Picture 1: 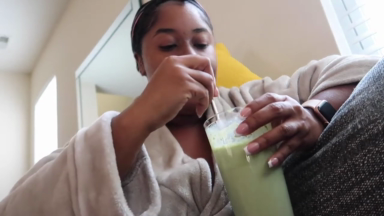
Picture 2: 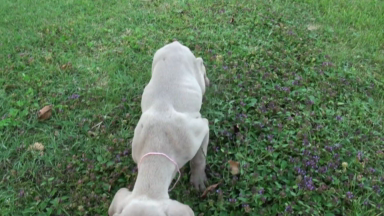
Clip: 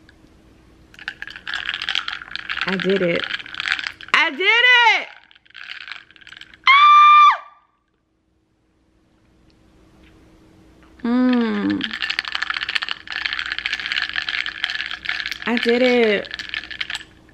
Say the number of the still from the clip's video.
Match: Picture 1